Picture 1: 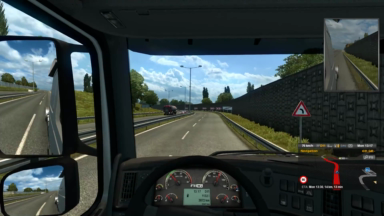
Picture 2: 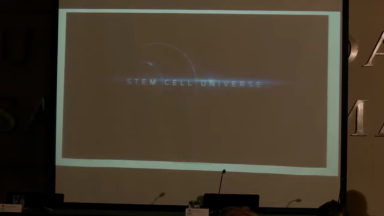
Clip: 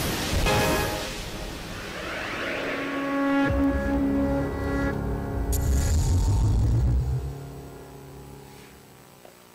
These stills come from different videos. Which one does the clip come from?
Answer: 2